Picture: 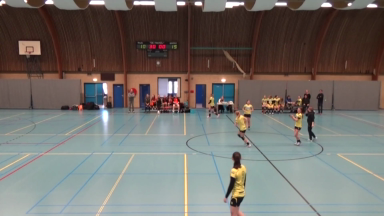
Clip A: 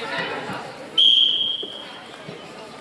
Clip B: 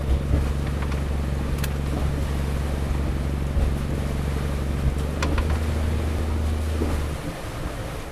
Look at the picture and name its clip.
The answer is A